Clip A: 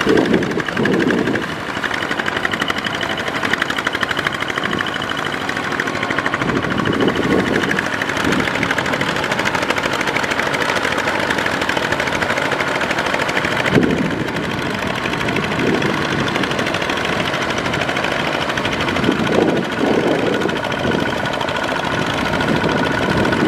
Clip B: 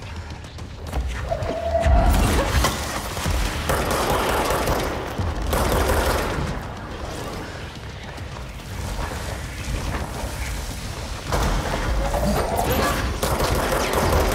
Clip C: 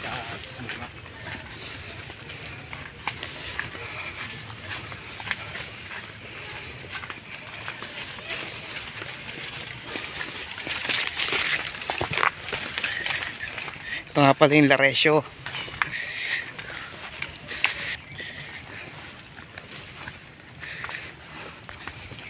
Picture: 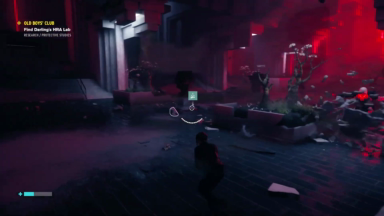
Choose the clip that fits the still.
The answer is B